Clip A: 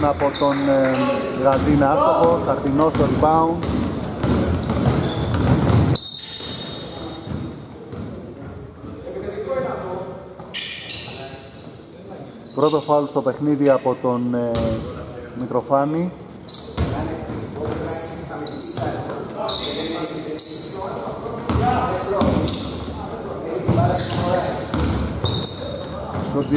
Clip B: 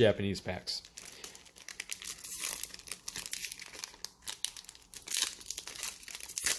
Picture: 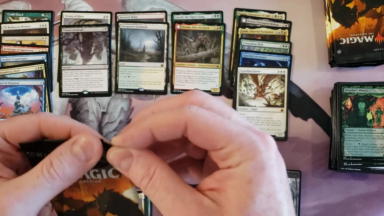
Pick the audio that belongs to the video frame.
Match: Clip B